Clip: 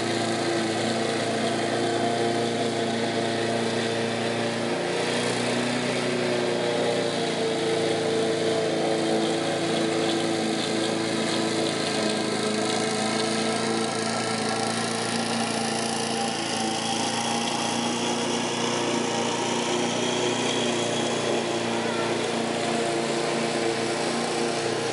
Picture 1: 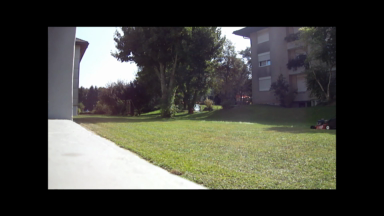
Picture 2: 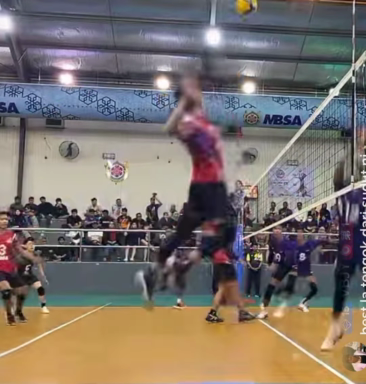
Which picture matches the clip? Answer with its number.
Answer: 1